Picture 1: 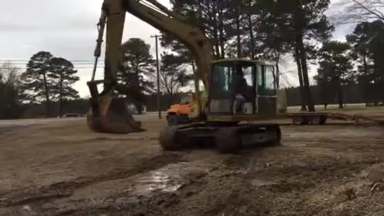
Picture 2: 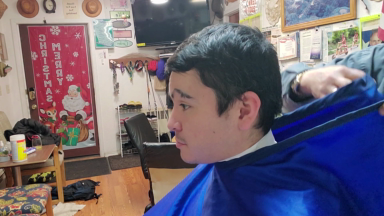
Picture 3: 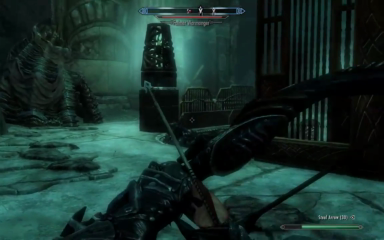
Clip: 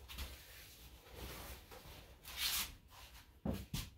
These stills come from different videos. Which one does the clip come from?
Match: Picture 2